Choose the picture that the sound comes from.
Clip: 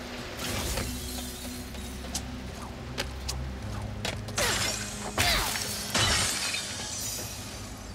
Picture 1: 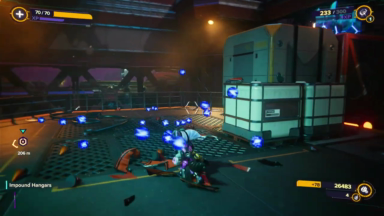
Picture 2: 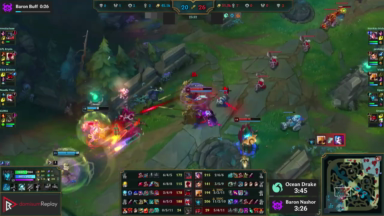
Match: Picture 1